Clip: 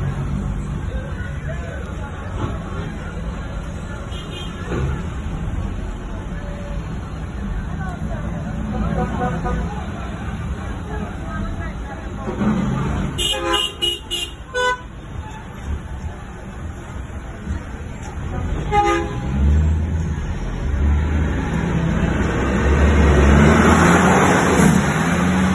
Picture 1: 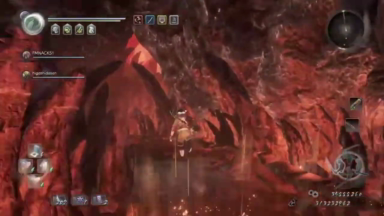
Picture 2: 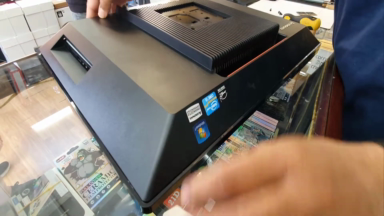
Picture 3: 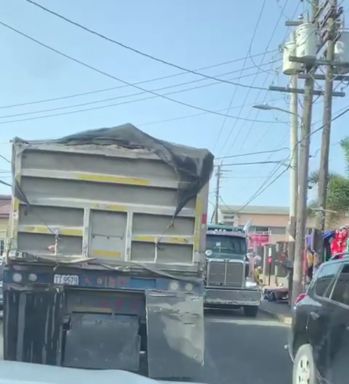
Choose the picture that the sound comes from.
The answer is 3